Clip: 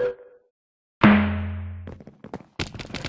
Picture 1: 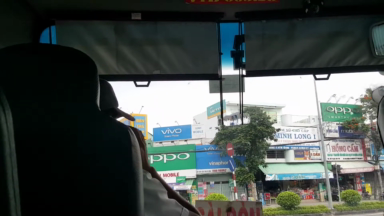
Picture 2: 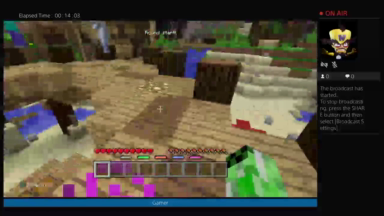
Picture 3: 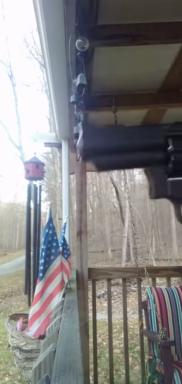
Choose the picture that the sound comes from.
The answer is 2